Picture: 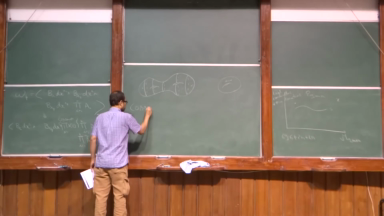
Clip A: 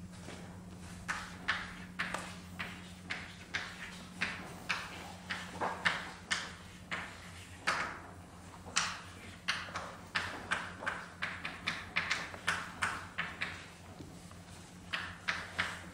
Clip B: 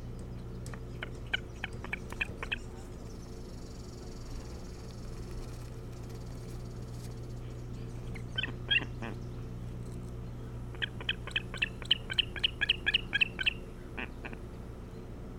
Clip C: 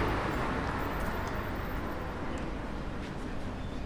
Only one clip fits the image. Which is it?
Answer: A